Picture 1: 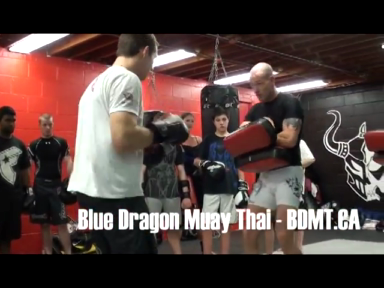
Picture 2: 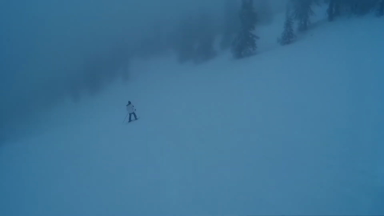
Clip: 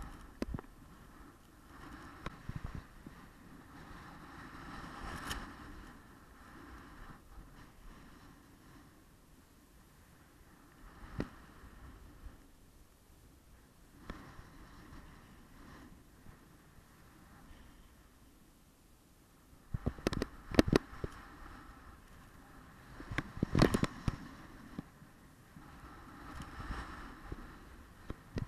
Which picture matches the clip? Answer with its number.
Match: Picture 2